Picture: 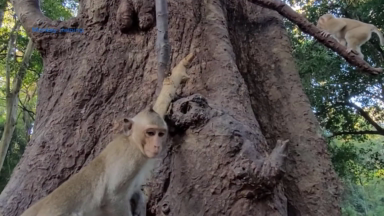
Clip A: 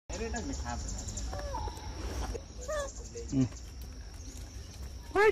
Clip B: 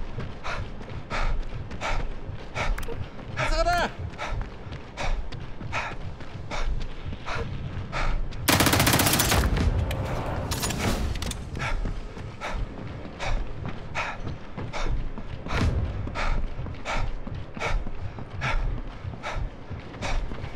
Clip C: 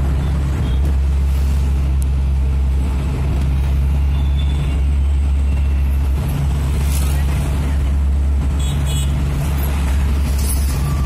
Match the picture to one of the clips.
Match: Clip A